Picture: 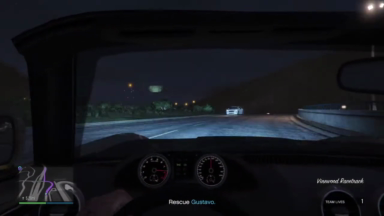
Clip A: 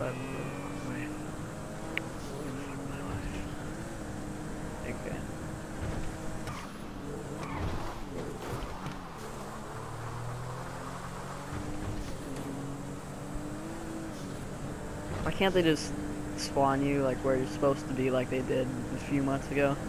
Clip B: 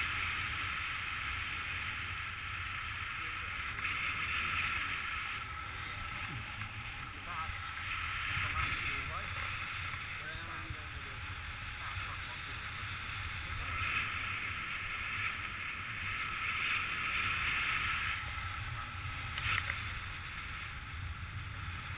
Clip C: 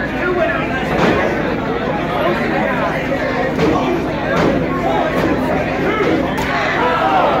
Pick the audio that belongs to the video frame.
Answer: A